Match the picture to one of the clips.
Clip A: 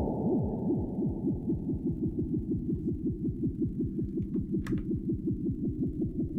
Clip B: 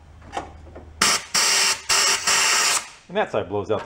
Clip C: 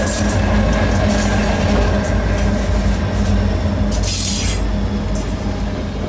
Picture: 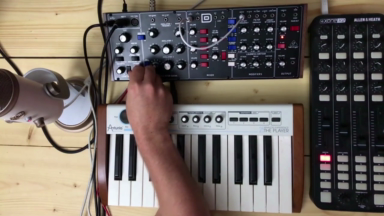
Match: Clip A